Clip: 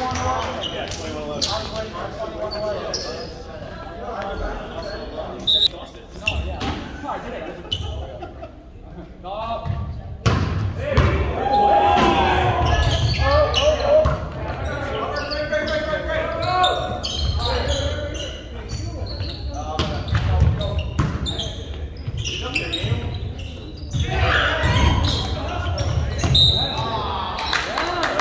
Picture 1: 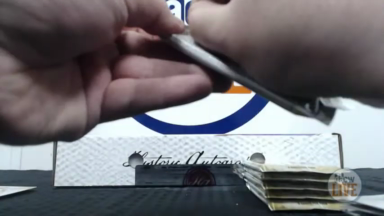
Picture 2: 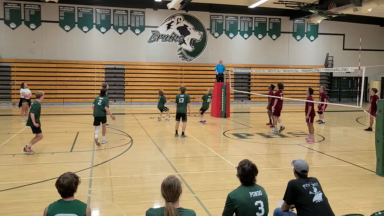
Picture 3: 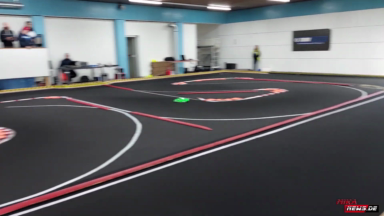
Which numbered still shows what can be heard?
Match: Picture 2